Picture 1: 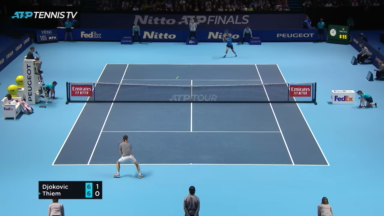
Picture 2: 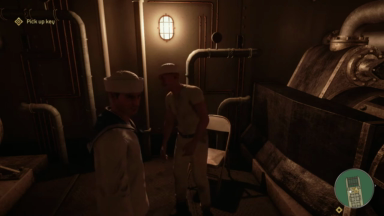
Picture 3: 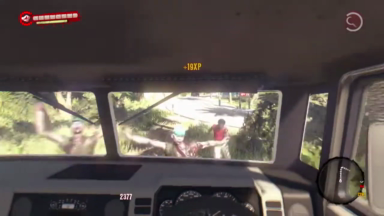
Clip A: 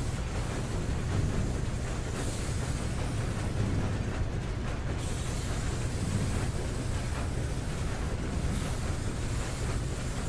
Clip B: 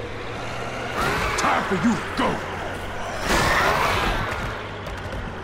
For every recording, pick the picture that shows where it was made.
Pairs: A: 2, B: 3